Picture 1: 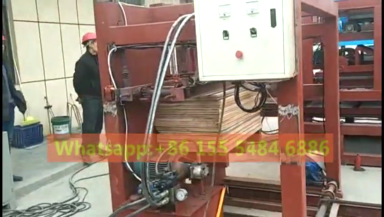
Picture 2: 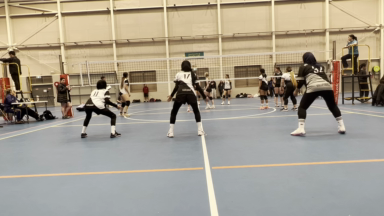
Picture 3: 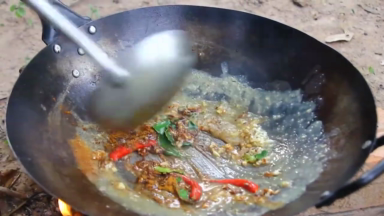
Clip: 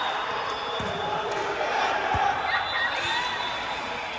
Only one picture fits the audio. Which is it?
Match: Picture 2